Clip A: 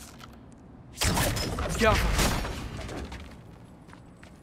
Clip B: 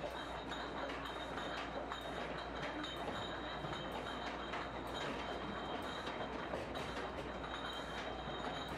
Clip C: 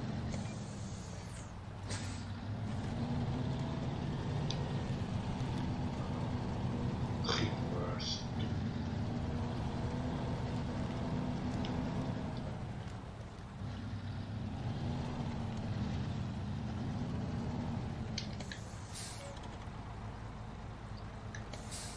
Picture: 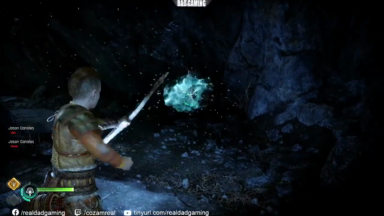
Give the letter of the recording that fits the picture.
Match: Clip A